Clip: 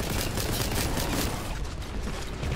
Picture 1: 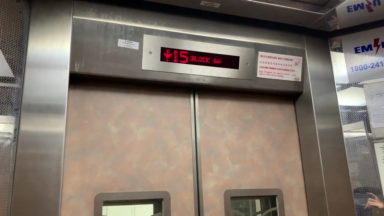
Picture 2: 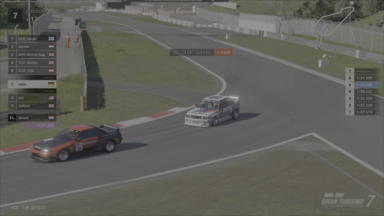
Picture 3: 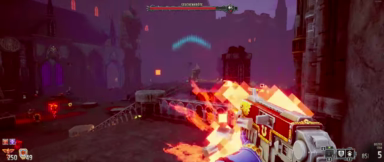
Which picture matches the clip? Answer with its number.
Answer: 3